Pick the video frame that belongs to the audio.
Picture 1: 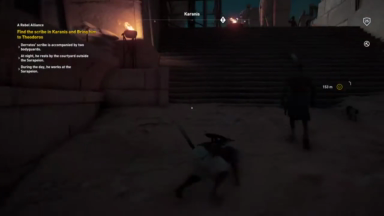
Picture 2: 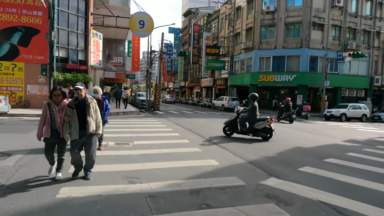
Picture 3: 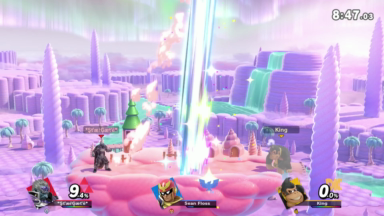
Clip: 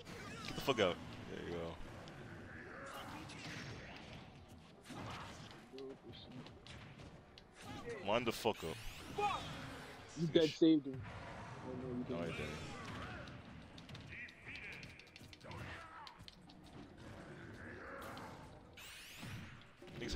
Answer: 3